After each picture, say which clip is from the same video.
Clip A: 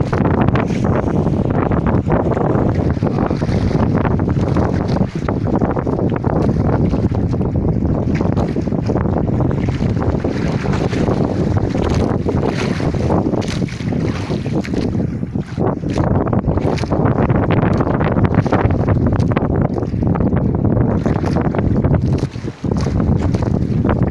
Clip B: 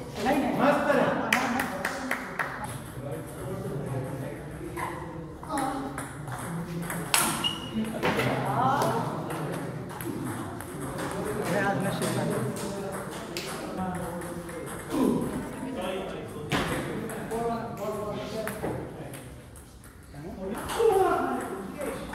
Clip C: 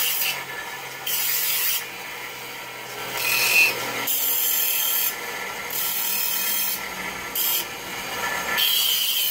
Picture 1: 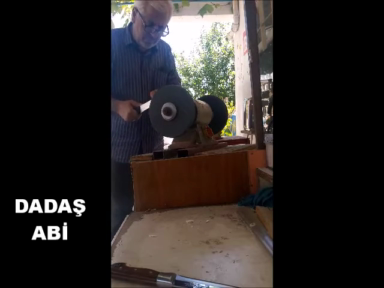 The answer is C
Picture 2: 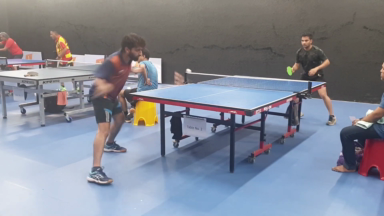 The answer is B